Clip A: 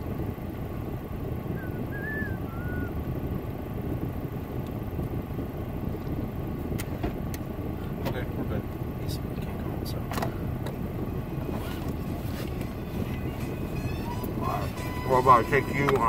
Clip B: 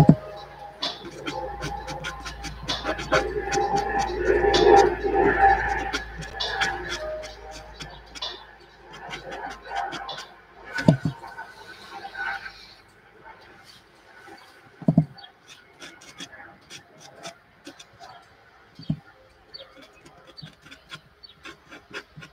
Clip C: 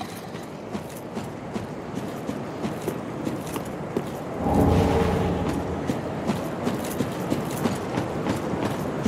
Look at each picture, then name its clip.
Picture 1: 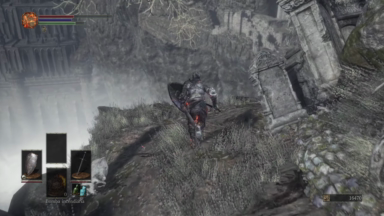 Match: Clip C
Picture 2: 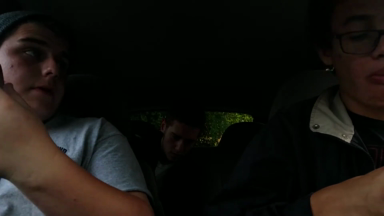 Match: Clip A